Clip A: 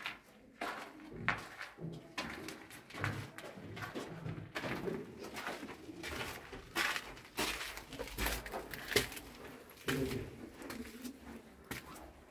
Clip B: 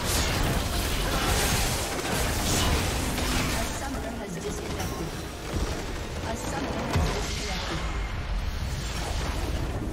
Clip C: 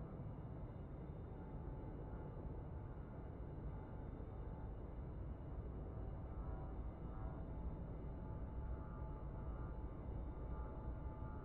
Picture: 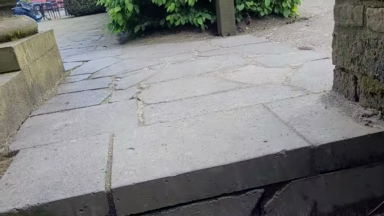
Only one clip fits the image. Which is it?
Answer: A